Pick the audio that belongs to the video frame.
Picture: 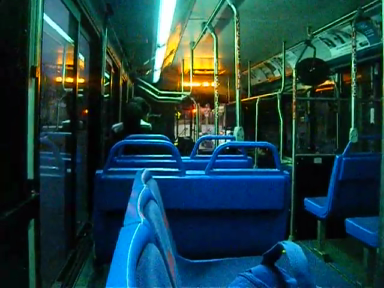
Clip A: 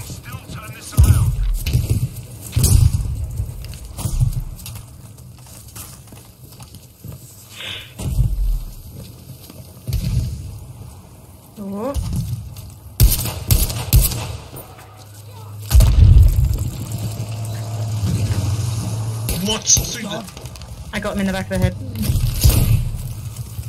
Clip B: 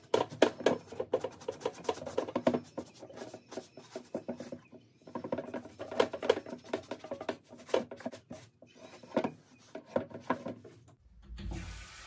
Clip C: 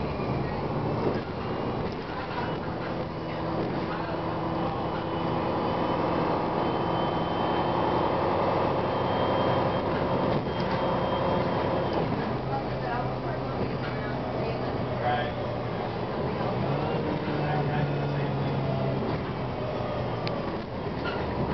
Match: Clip C